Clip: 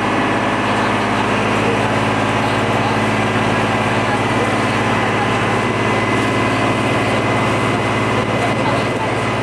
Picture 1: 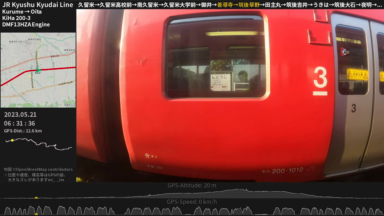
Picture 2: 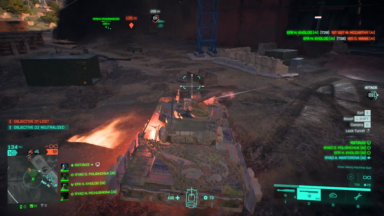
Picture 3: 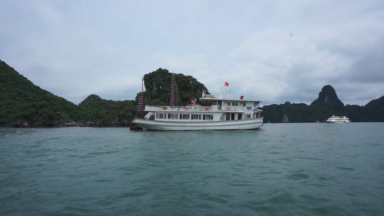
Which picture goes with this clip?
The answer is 3